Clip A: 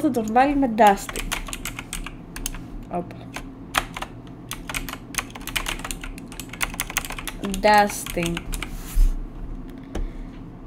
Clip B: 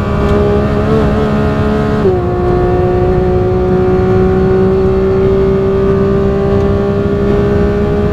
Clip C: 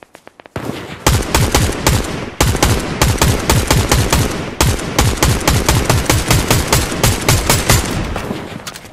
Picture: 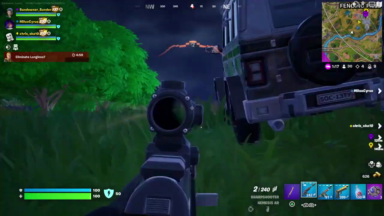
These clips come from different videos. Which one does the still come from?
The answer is C